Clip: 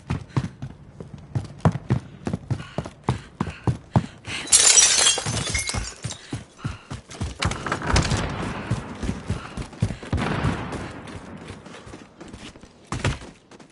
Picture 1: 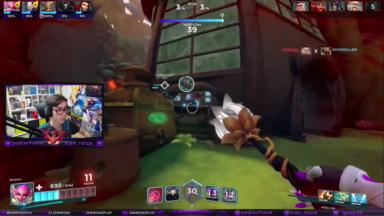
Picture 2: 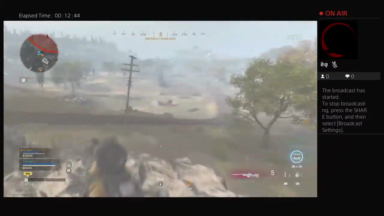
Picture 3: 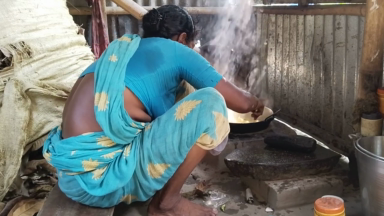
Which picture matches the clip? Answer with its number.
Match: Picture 2